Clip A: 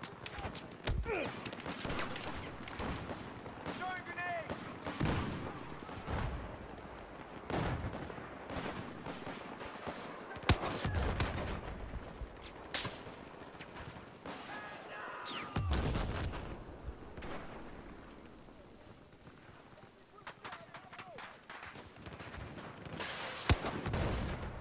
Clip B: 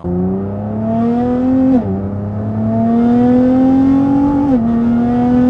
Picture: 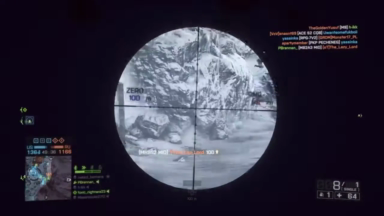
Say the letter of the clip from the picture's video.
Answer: A